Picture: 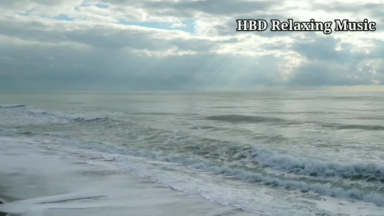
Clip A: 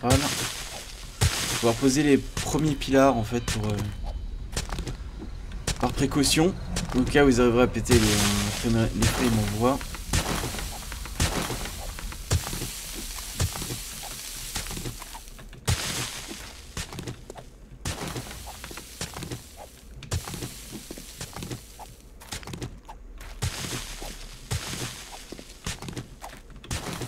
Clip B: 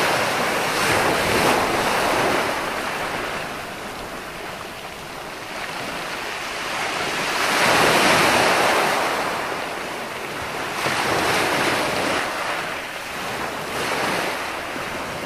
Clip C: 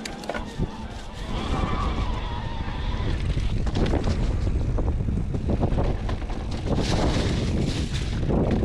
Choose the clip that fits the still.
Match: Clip B